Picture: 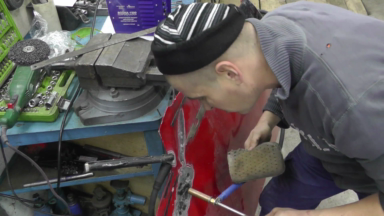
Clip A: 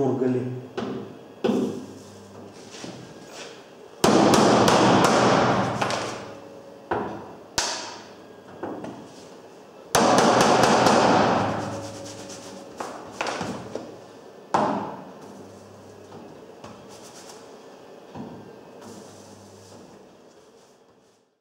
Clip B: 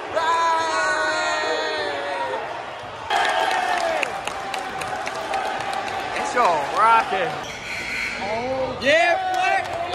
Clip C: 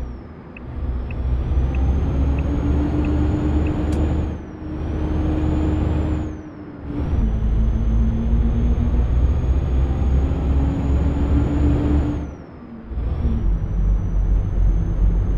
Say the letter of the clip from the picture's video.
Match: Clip A